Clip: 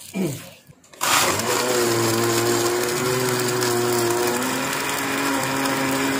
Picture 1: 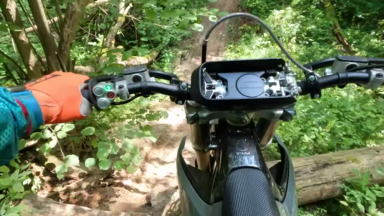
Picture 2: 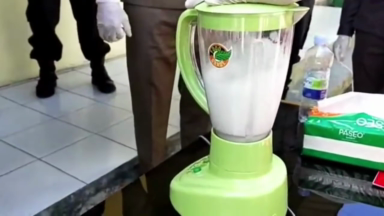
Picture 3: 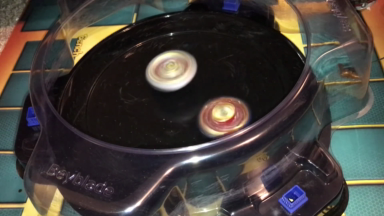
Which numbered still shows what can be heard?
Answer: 2